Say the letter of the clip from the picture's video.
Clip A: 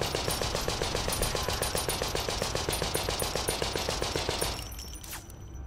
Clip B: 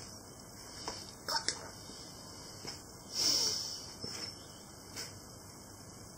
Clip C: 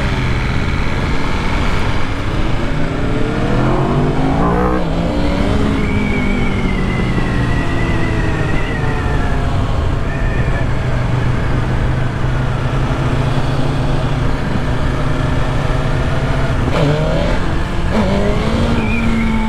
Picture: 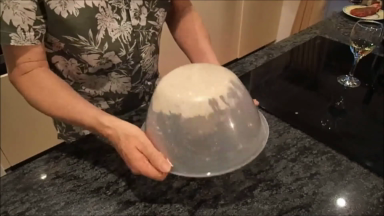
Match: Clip B